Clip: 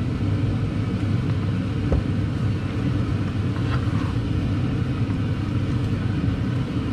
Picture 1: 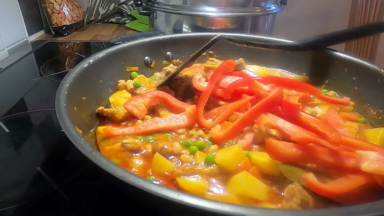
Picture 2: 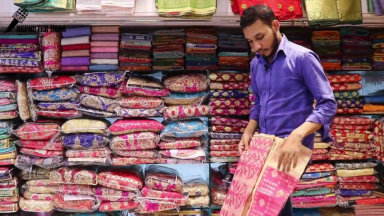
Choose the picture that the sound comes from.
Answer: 1